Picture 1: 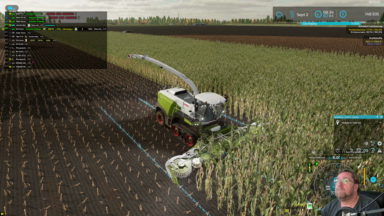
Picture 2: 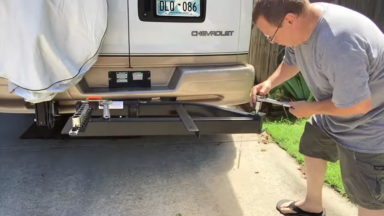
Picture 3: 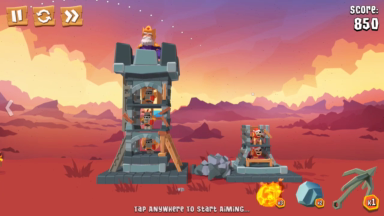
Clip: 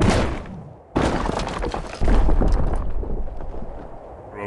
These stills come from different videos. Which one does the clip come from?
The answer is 3